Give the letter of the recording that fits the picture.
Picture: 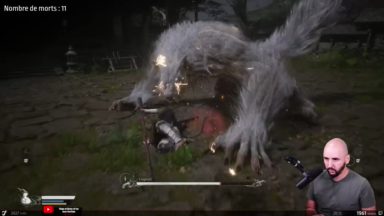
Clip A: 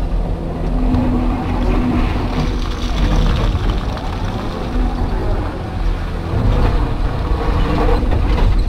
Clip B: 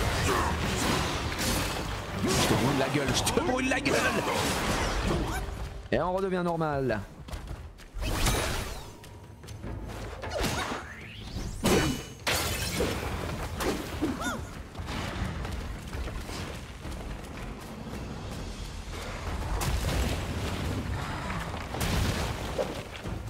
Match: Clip B